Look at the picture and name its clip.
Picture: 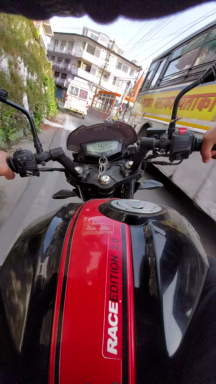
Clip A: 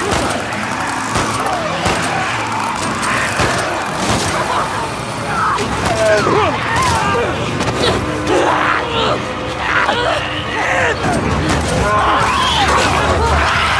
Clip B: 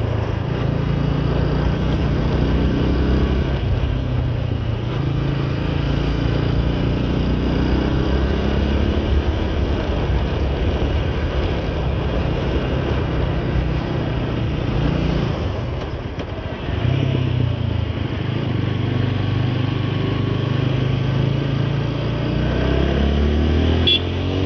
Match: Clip B